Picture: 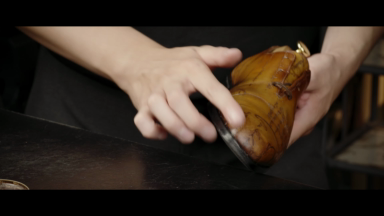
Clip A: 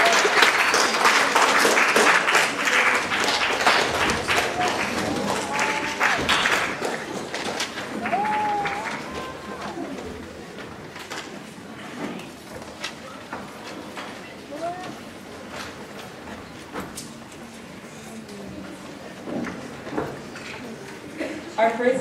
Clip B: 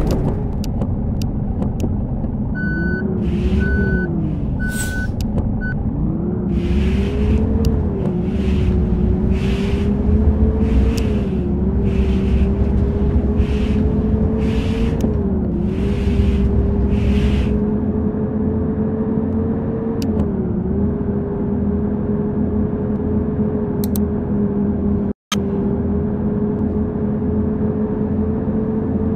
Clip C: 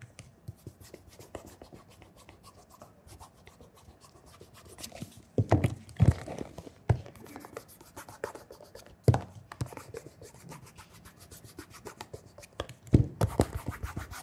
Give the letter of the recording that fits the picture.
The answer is C